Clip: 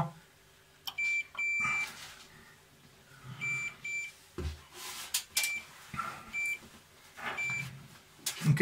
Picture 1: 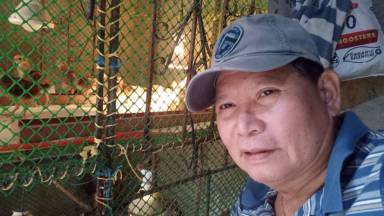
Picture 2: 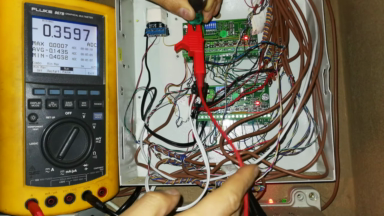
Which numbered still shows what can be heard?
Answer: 2